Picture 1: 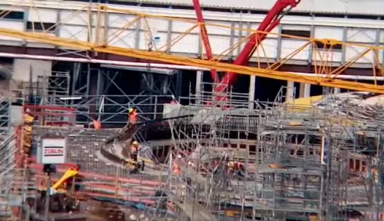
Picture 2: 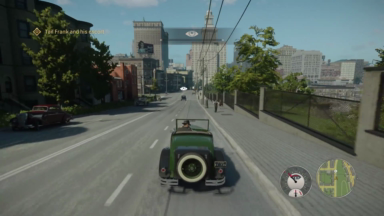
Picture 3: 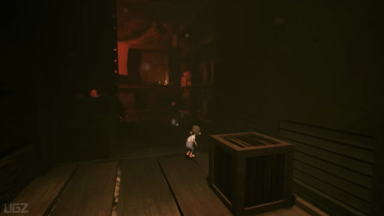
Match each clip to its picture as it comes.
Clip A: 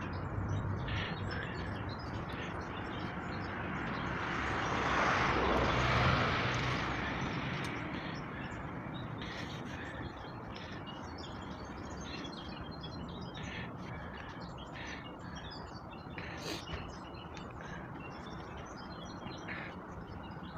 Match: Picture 1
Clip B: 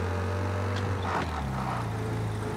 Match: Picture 2